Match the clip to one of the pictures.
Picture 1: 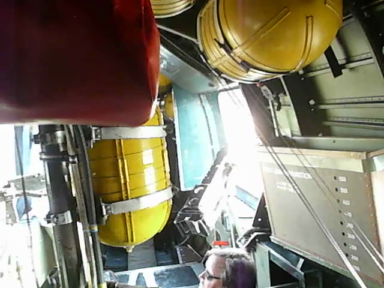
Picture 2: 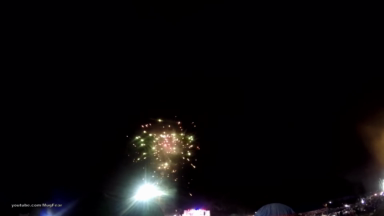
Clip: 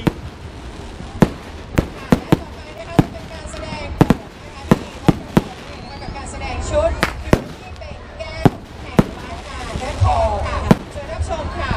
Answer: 2